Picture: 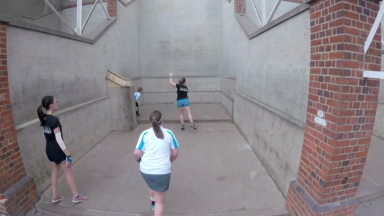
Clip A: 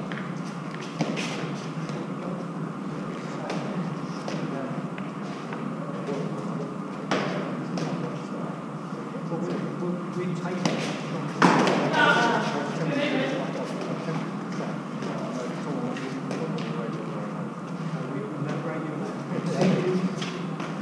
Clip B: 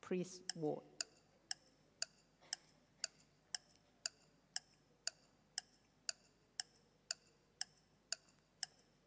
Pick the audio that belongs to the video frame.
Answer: A